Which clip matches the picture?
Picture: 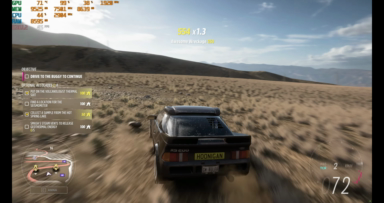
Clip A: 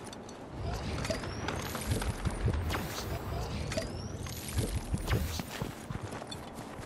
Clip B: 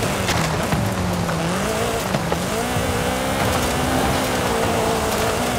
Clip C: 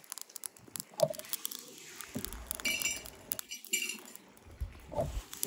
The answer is B